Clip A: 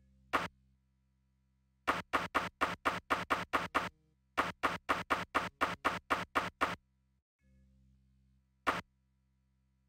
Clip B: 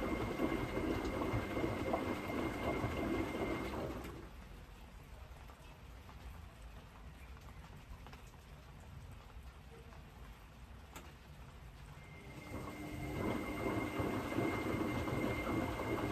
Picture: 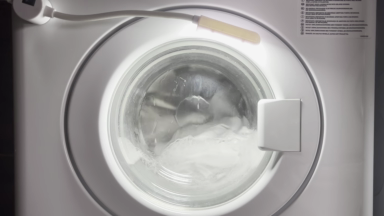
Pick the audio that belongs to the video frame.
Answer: B